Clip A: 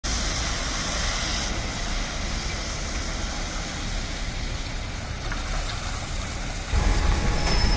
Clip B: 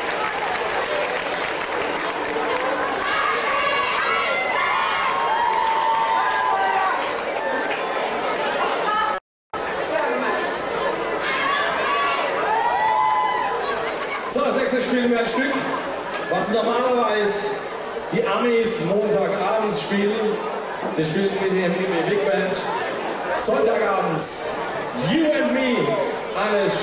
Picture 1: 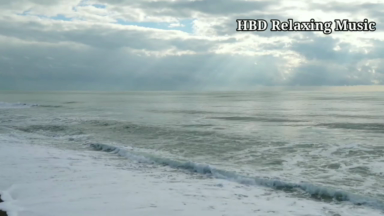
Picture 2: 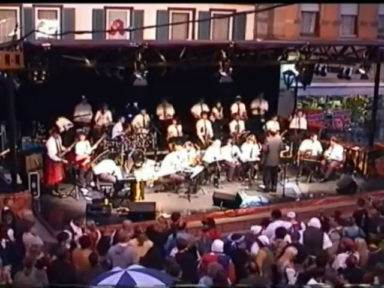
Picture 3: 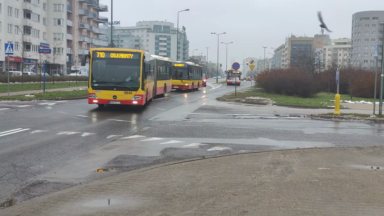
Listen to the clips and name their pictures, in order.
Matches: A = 3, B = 2